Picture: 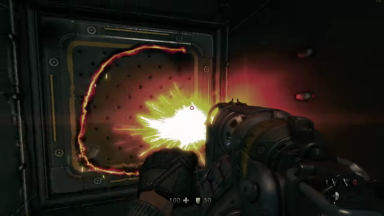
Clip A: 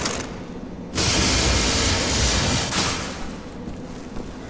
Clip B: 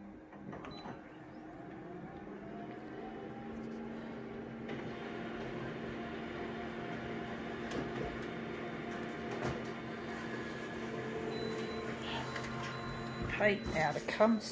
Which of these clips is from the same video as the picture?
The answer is A